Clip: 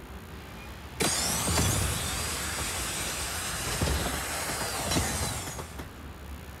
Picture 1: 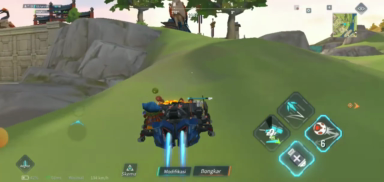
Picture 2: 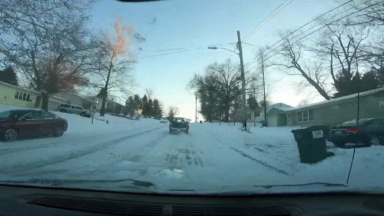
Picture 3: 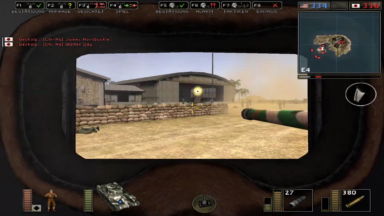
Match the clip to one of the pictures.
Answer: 1